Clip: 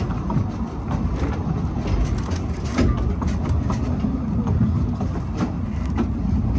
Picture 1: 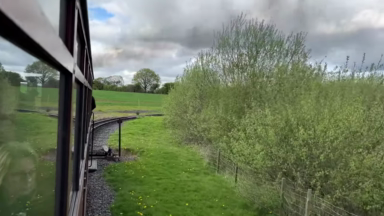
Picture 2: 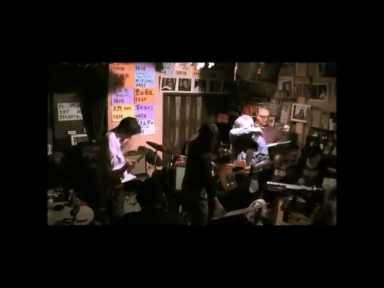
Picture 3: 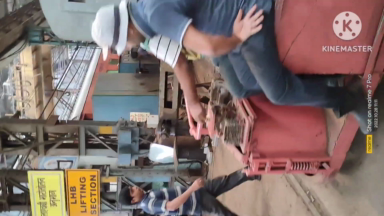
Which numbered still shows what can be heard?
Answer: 1